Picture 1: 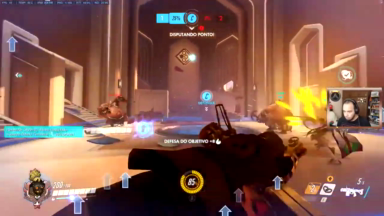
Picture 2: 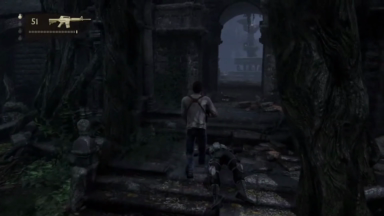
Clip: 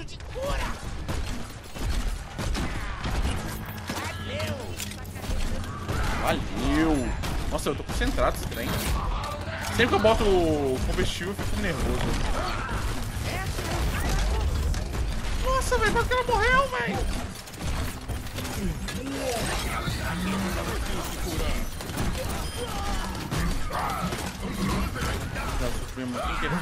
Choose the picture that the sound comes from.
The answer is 1